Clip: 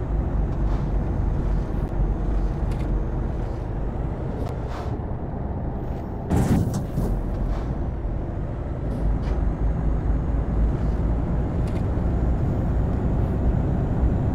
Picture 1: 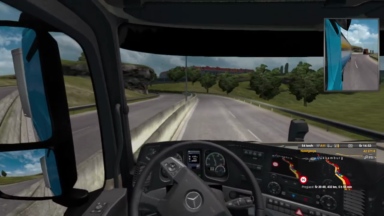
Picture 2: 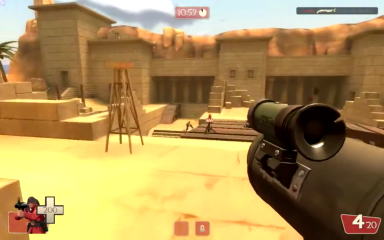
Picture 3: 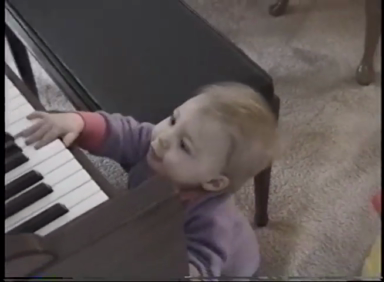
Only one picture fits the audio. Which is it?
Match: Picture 1